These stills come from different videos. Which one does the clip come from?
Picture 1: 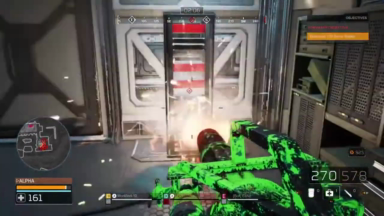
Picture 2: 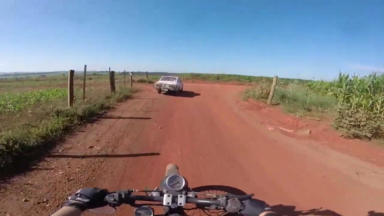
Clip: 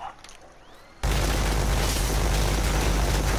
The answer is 1